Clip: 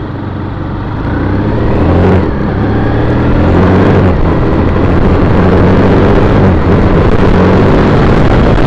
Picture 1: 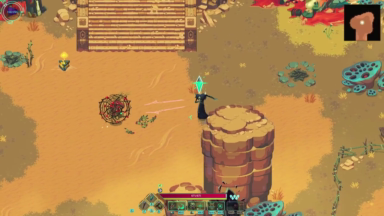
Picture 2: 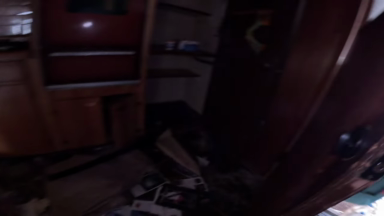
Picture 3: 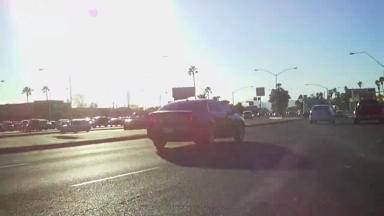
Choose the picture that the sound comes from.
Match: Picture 3